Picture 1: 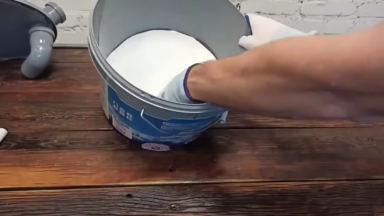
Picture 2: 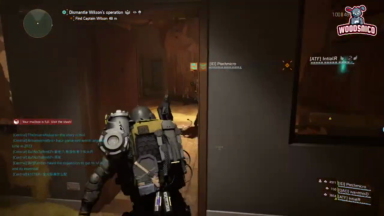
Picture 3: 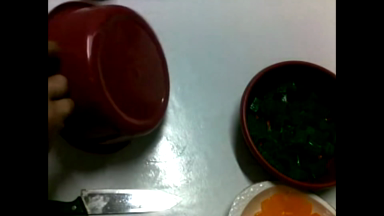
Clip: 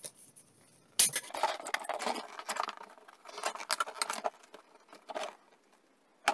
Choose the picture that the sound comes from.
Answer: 1